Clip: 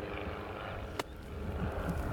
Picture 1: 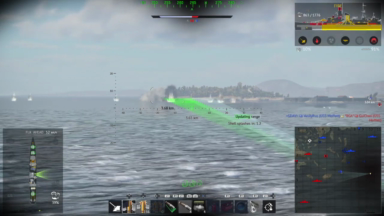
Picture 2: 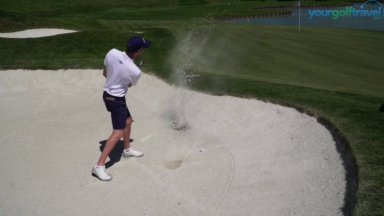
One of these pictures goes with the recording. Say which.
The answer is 2